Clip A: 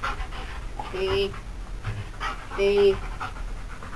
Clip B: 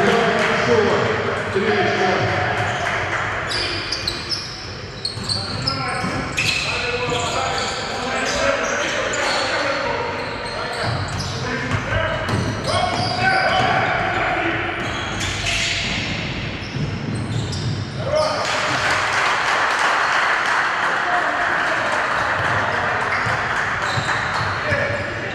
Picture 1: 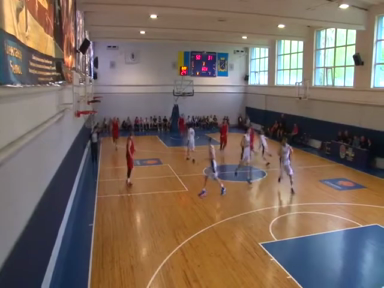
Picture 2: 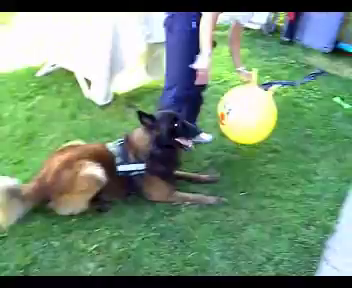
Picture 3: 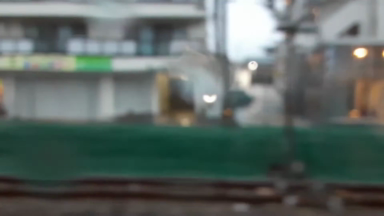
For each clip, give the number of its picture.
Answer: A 2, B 1